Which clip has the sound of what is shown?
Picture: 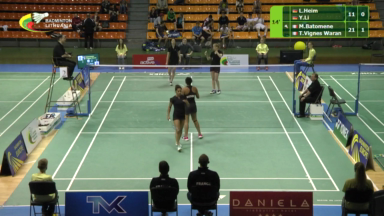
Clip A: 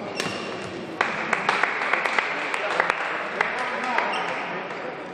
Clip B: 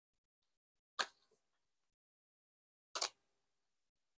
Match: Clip A